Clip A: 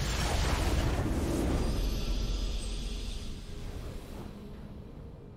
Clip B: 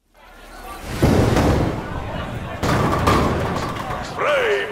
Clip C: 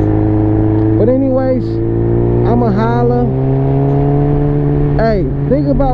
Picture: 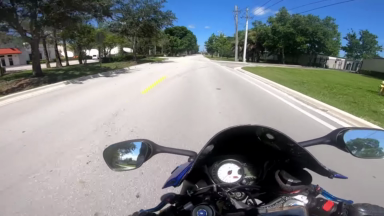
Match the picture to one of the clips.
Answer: C